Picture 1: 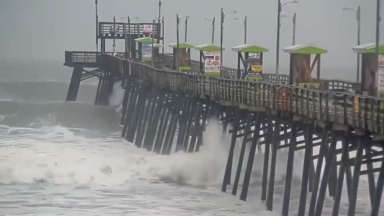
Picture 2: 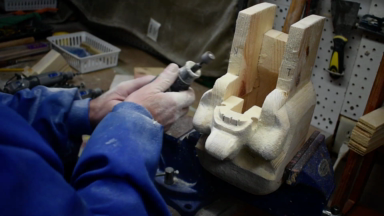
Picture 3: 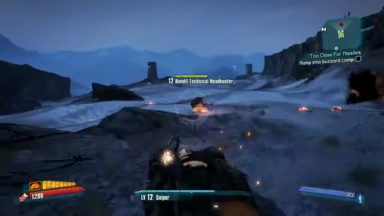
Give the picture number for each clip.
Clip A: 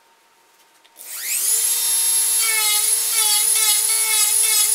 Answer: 2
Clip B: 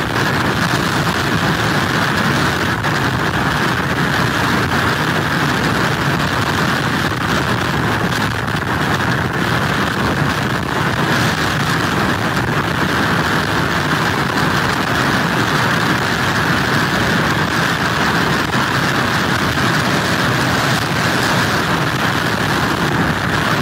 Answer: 1